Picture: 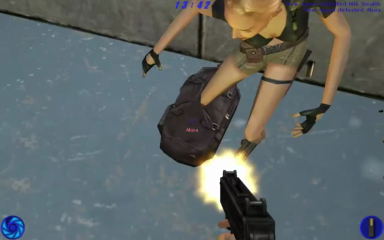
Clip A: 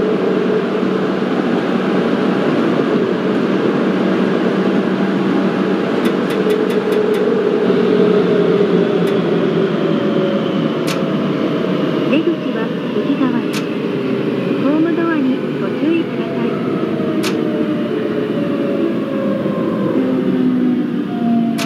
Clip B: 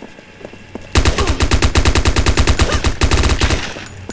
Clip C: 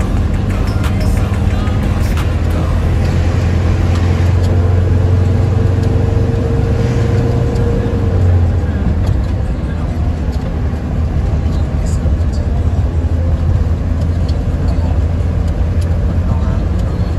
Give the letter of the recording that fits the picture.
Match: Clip B